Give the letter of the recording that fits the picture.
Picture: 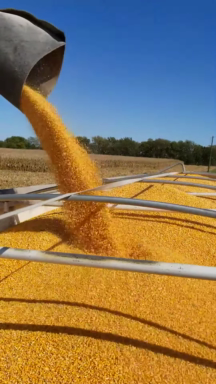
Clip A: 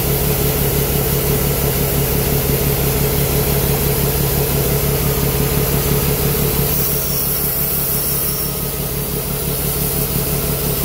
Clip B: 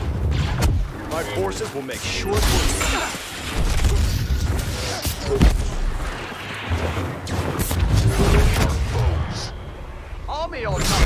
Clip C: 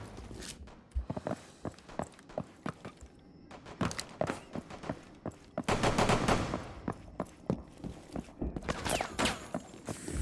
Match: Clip A